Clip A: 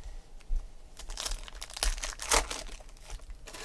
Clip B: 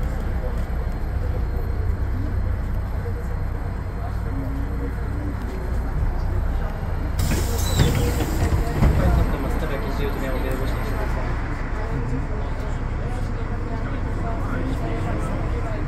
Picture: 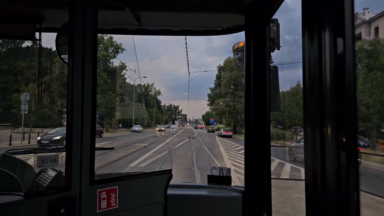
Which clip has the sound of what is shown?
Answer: B